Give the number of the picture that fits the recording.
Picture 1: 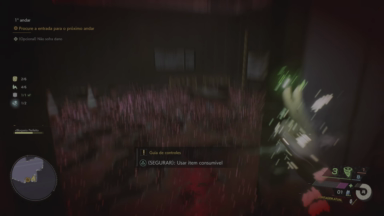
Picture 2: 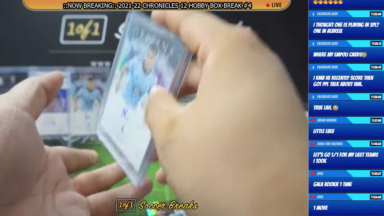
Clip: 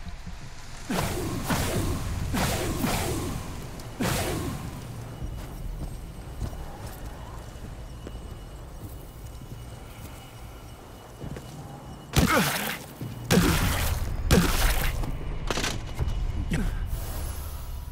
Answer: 1